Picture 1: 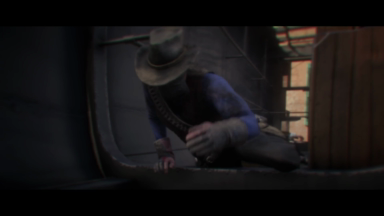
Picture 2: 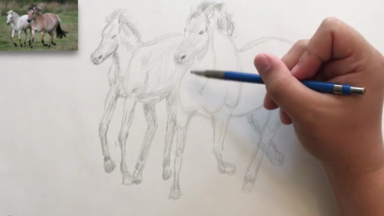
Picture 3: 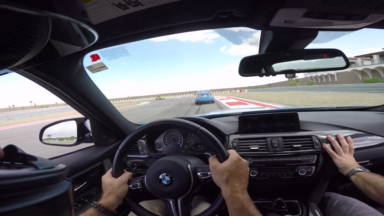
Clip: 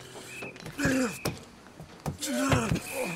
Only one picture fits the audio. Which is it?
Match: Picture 1